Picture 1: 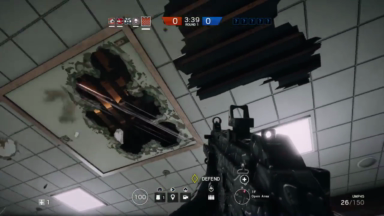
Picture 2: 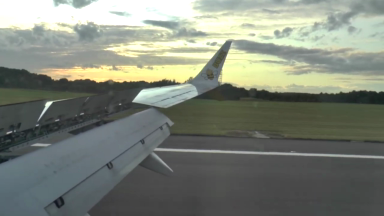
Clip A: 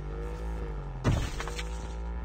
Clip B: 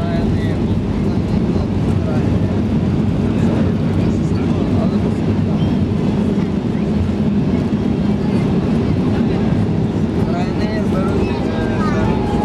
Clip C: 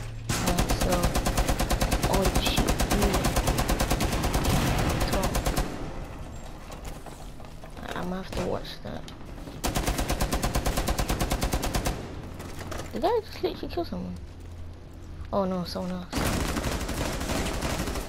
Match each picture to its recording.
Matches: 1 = C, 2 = B